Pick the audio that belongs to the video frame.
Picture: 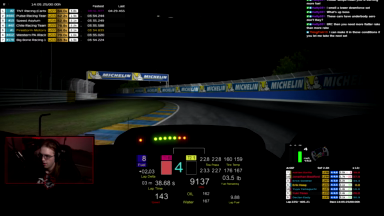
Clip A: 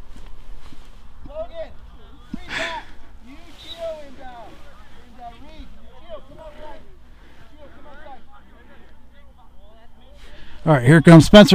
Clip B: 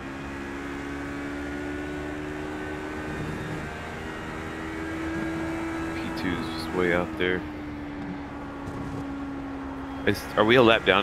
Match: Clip B